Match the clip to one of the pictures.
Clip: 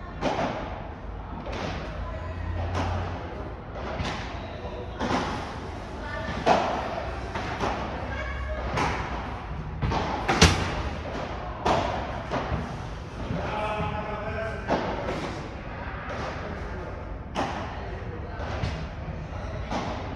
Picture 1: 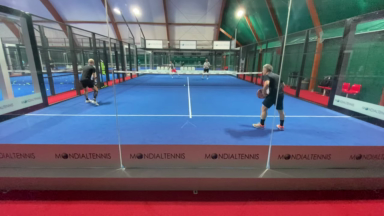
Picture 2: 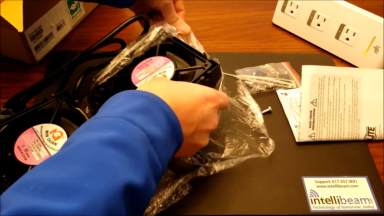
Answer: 1